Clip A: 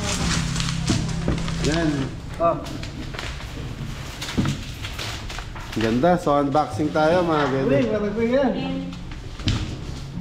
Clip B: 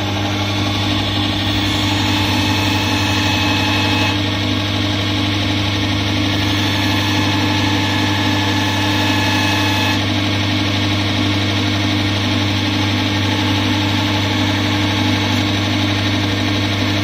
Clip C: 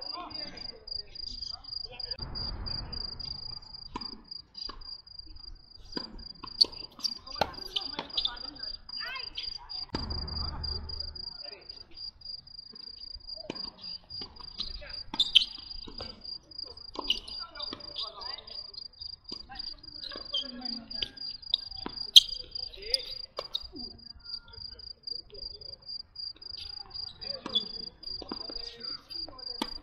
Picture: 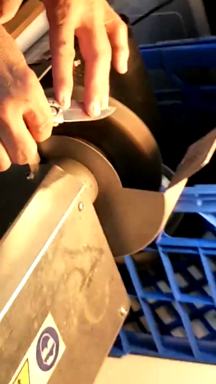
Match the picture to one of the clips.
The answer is B